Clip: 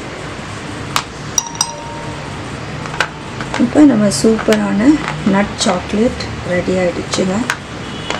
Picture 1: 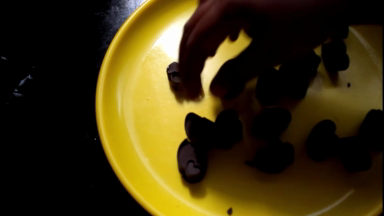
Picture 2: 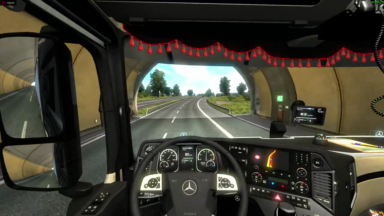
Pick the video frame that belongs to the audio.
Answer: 1